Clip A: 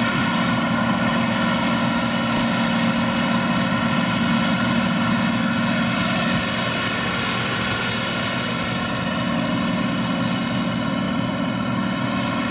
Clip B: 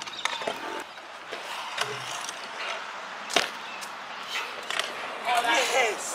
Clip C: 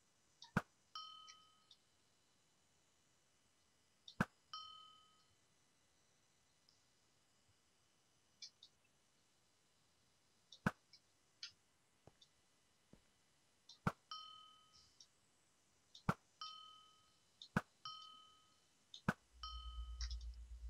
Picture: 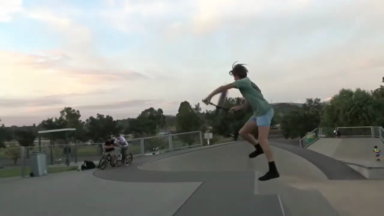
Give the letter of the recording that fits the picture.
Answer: B